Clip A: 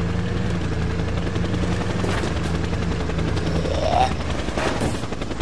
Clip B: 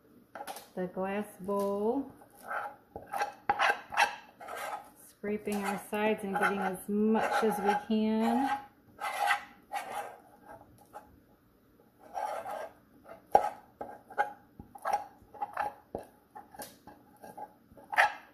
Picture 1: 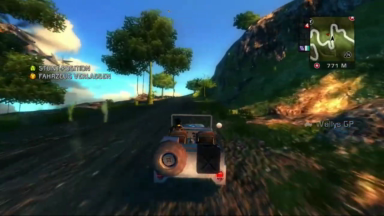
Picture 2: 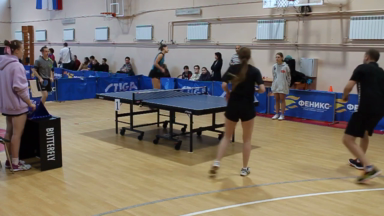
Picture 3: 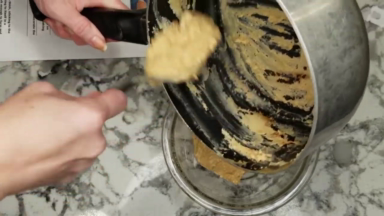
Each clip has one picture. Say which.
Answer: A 1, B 3